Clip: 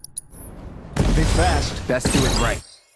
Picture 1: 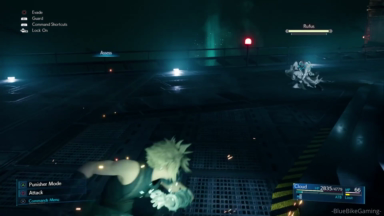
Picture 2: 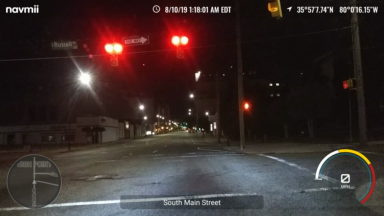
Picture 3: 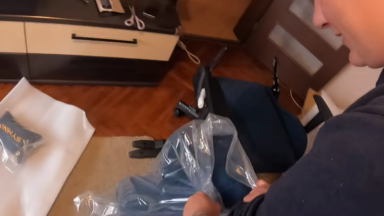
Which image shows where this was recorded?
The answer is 1